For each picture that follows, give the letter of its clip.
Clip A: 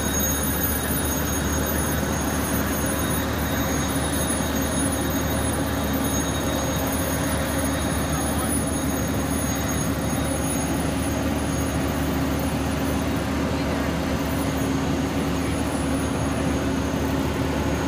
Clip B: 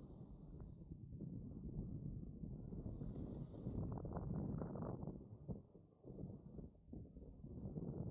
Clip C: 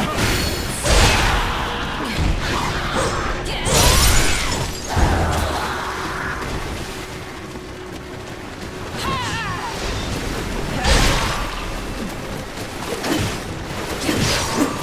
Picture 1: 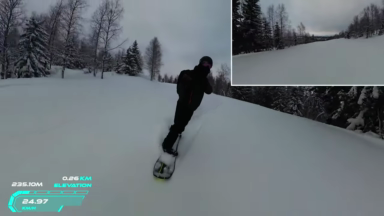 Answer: B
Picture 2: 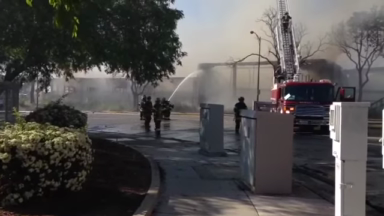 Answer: A